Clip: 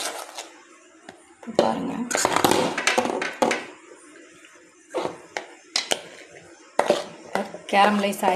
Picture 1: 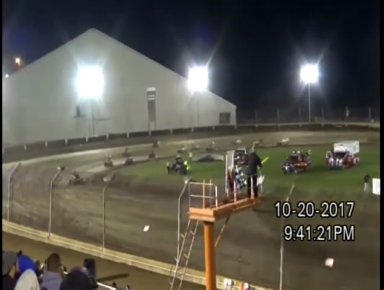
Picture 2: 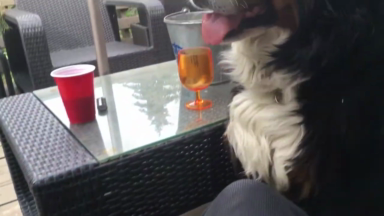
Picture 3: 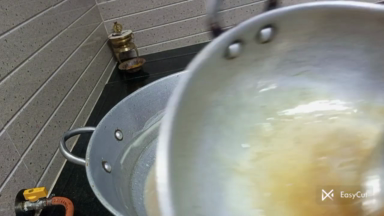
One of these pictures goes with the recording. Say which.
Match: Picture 3